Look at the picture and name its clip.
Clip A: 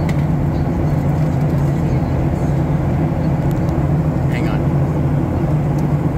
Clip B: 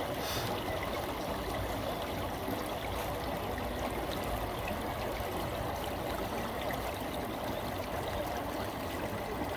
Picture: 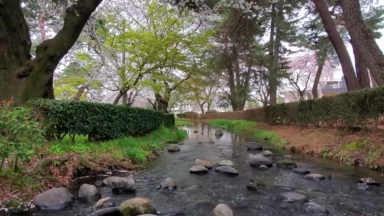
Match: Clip B